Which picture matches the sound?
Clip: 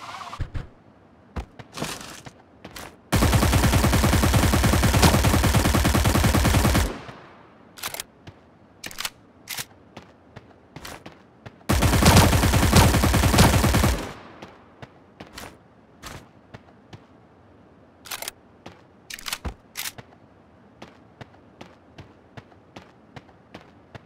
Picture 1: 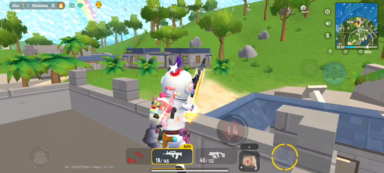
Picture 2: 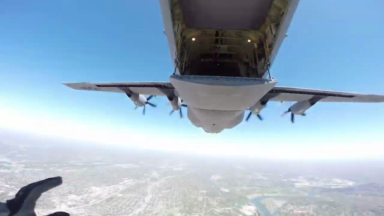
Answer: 1